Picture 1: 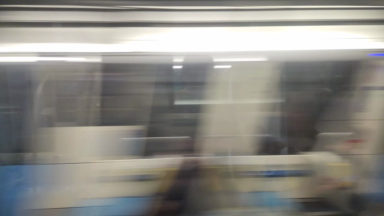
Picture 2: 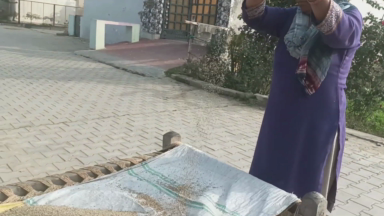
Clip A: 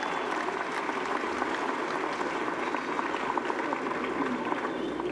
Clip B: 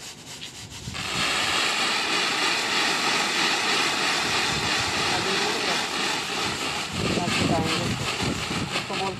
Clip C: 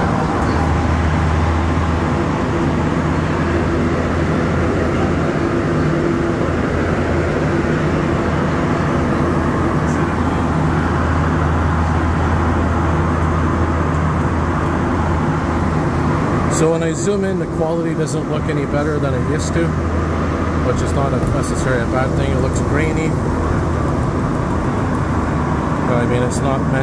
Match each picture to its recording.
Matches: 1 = C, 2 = B